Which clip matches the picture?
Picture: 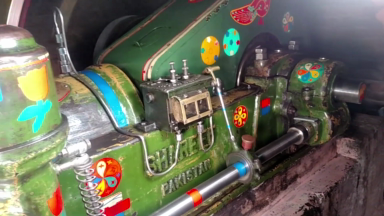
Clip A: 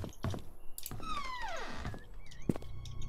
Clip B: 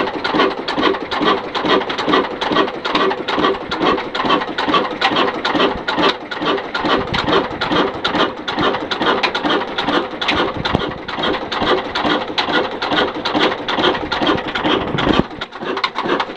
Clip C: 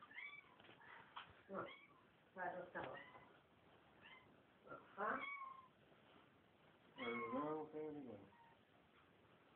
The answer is B